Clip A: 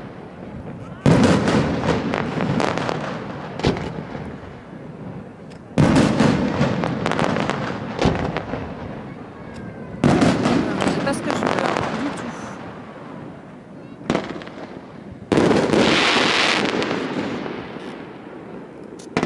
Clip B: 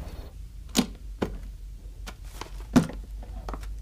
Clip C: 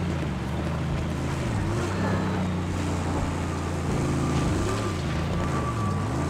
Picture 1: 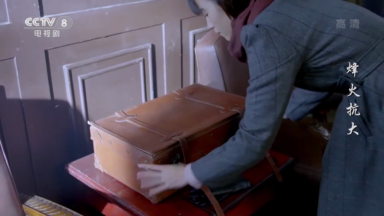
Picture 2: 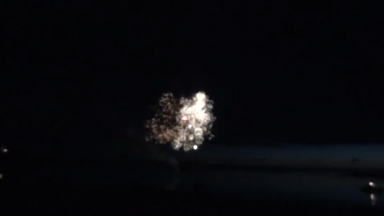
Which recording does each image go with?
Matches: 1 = B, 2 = A